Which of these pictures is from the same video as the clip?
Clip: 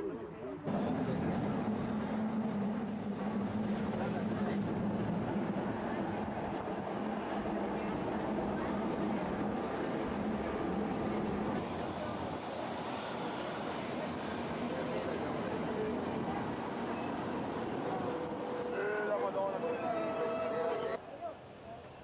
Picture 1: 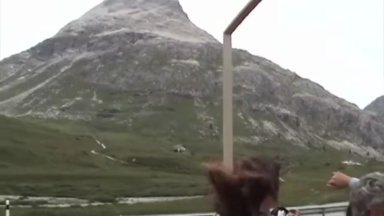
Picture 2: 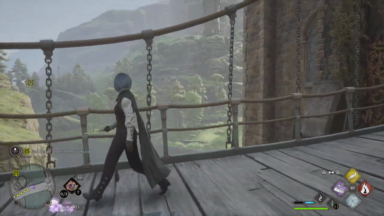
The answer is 1